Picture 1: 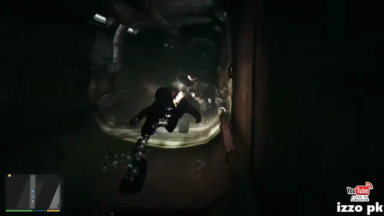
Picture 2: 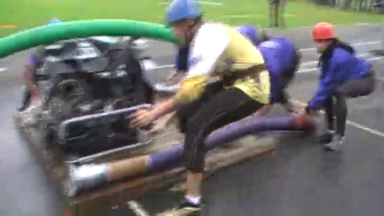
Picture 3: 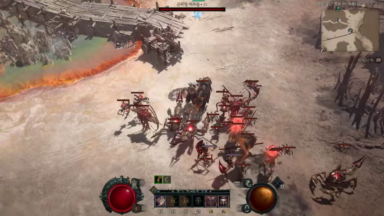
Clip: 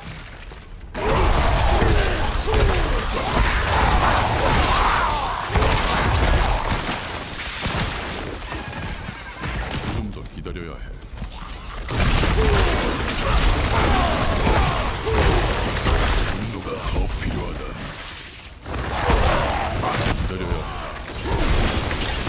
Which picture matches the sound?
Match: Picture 3